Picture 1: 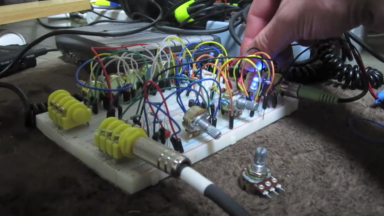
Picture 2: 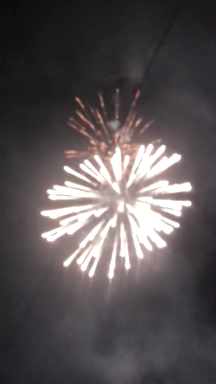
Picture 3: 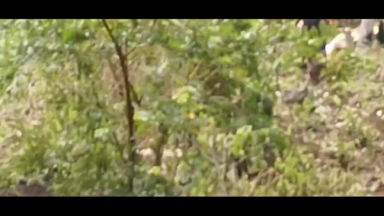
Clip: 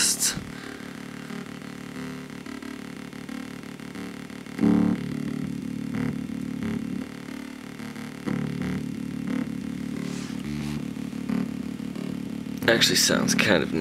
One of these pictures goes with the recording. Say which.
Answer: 1